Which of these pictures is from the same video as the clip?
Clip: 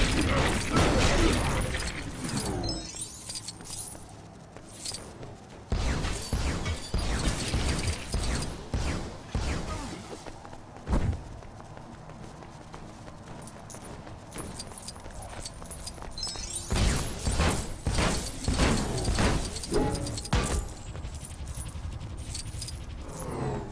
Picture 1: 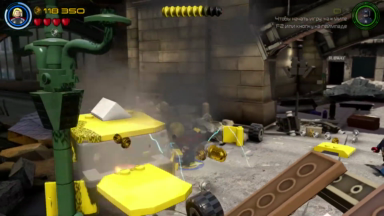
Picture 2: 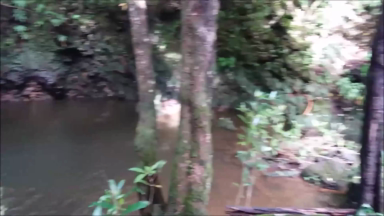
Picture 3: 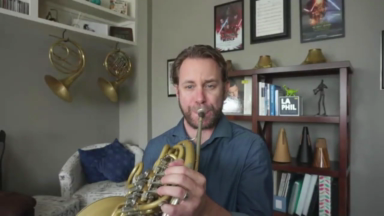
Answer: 1